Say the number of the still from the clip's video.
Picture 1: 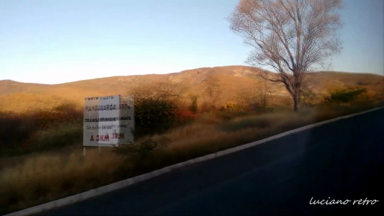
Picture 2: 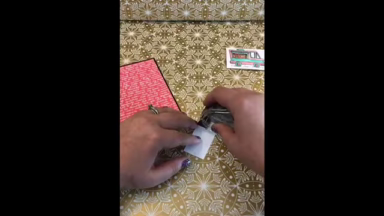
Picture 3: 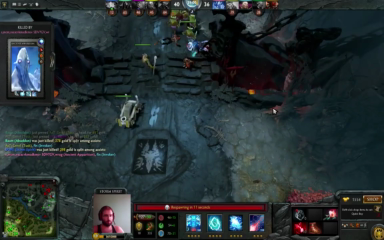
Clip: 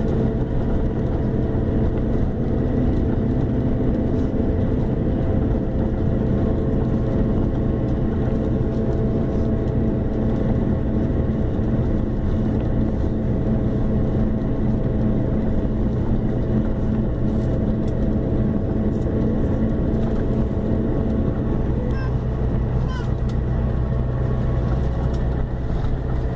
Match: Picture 1